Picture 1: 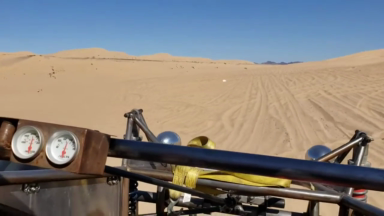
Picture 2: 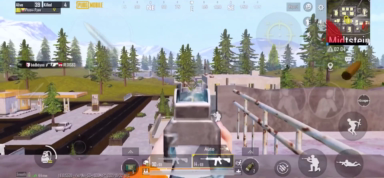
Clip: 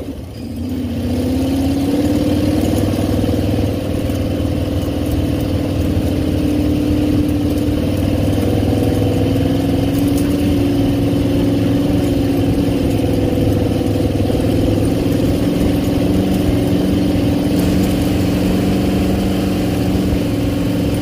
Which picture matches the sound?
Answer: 1